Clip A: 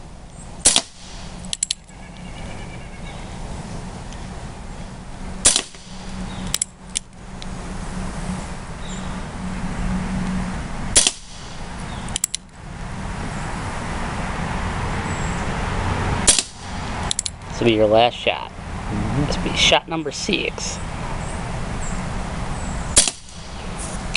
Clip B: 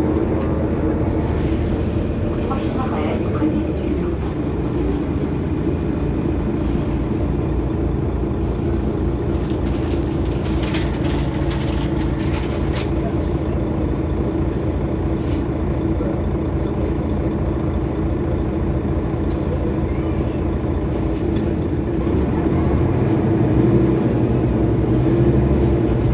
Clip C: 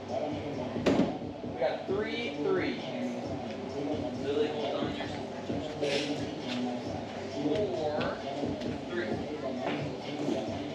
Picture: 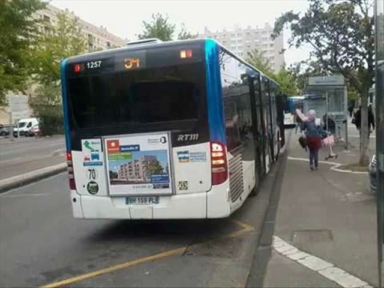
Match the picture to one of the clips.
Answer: B